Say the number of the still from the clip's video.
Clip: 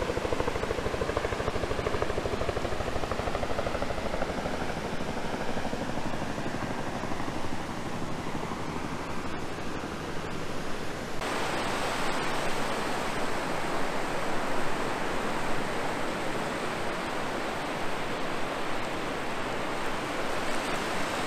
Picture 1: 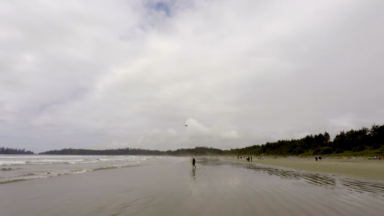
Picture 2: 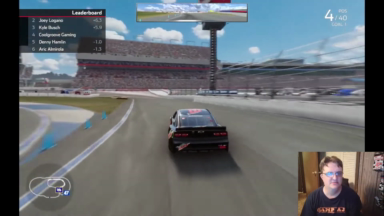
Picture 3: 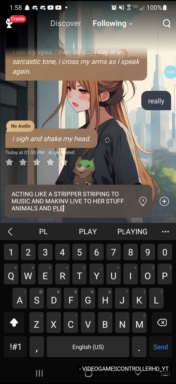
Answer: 1